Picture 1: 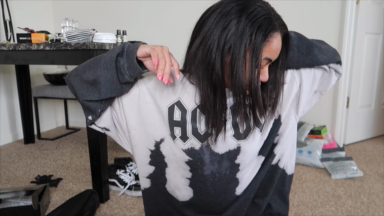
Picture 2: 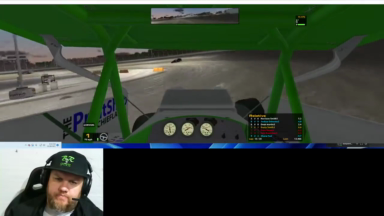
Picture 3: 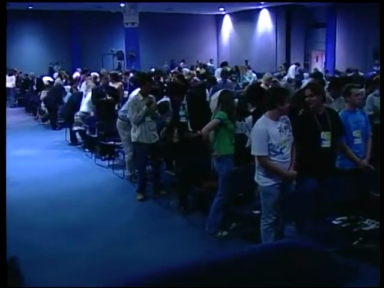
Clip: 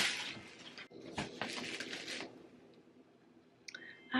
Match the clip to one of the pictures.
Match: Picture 1